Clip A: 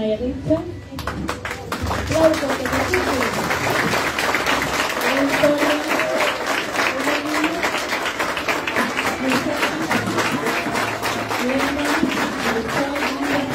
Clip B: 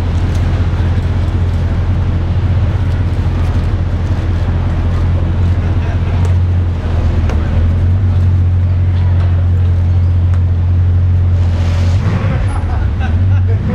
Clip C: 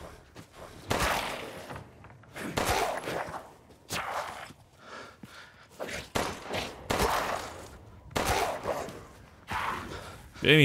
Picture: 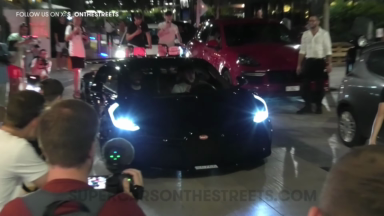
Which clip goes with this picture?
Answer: B